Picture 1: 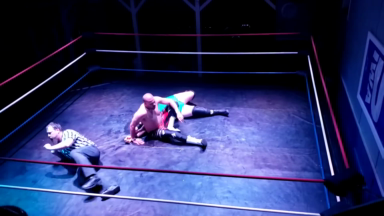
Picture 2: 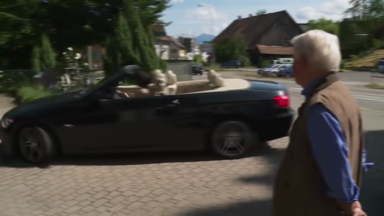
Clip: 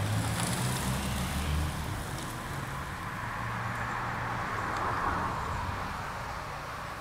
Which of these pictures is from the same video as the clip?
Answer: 2